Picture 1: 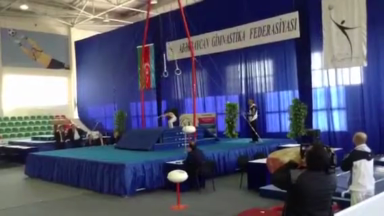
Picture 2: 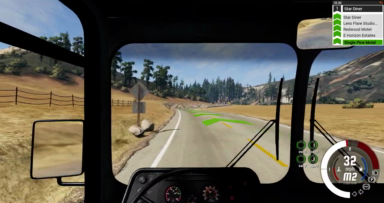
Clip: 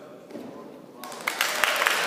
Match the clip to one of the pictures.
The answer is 1